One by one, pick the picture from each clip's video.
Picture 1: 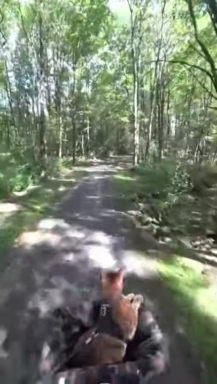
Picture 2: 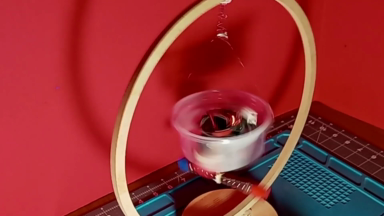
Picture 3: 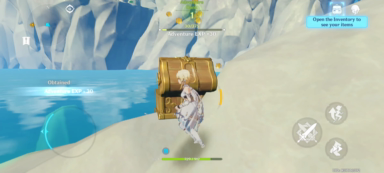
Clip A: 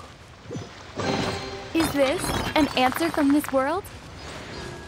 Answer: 3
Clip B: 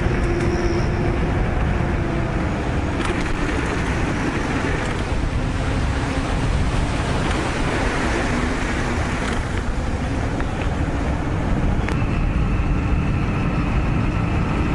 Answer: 1